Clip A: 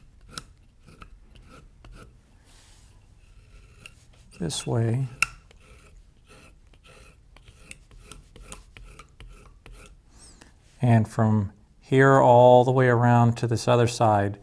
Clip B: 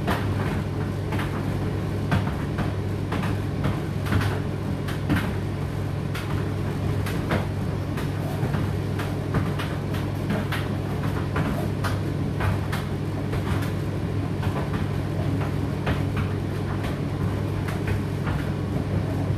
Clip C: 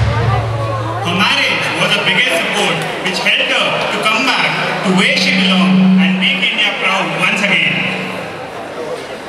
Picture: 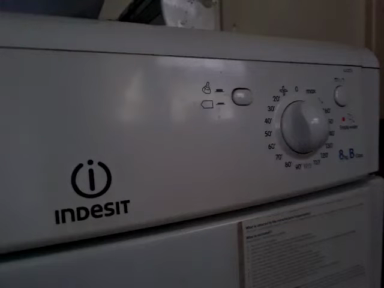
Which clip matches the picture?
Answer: B